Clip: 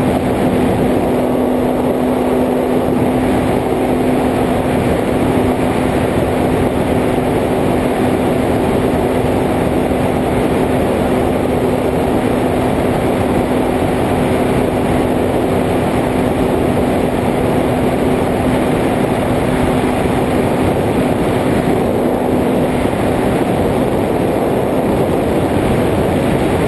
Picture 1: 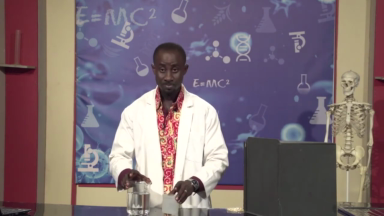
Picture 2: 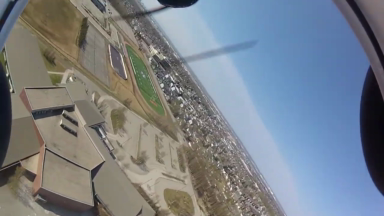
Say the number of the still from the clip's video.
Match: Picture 2